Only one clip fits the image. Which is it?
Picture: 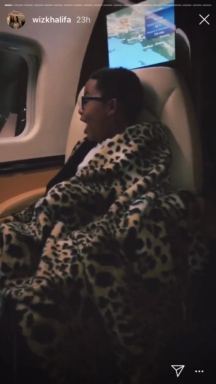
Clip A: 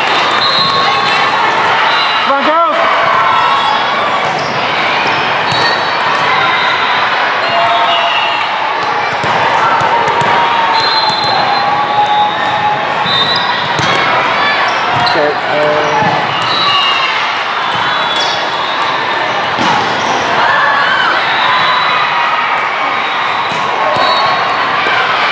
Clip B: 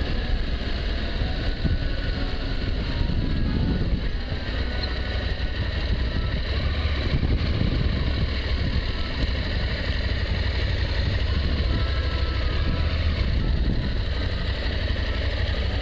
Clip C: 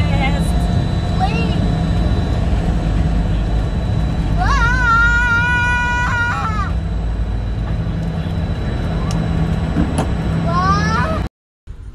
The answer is C